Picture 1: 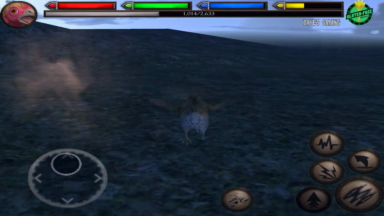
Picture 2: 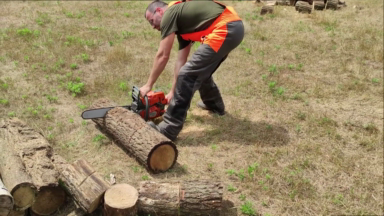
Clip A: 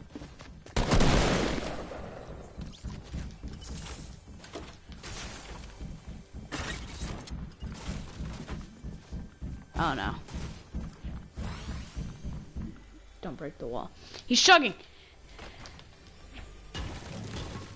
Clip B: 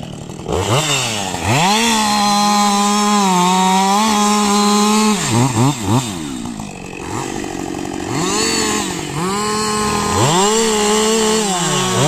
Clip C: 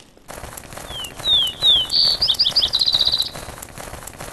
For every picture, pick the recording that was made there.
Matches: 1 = C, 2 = B